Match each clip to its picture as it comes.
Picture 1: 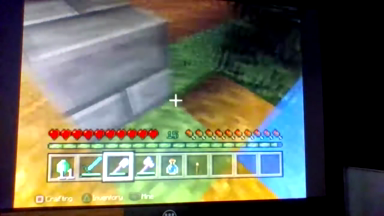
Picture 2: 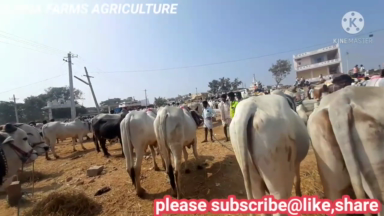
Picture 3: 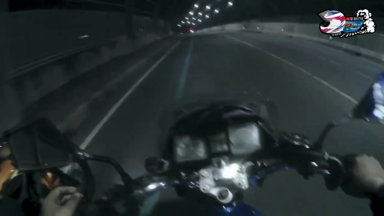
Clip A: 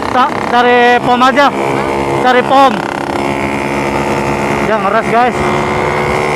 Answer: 3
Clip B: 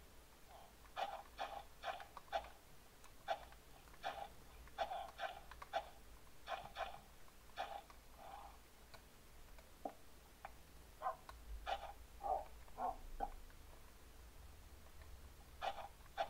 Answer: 1